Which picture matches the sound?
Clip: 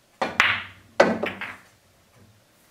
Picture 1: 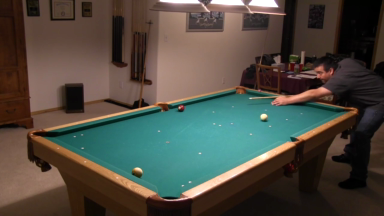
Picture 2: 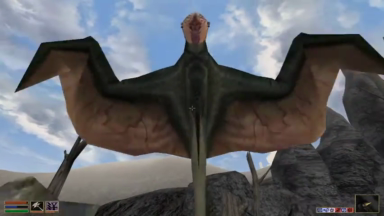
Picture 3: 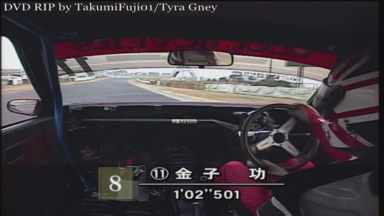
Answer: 1